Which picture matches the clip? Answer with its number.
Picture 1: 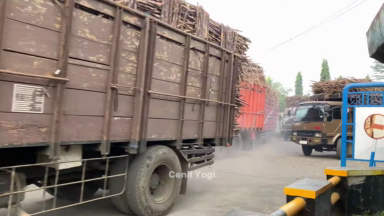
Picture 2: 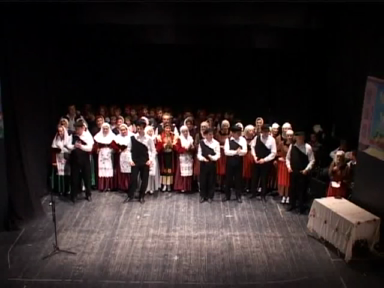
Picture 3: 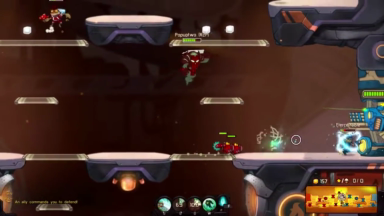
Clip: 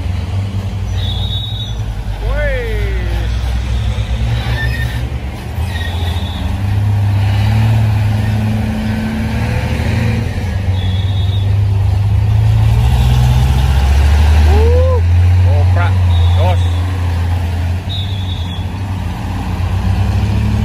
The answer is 1